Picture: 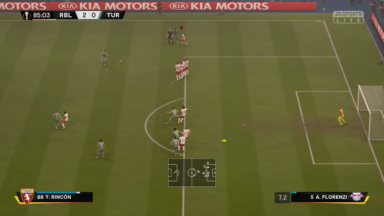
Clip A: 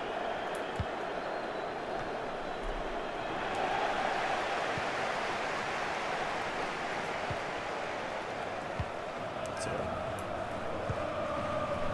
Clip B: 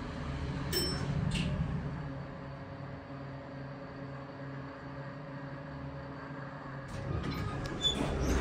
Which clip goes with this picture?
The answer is A